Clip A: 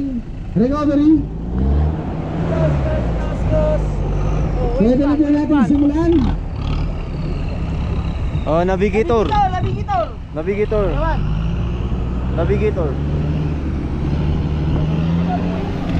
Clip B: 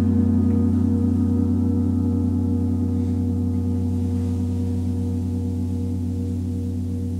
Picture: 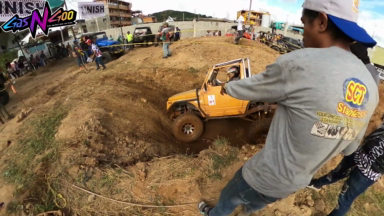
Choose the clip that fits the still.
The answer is A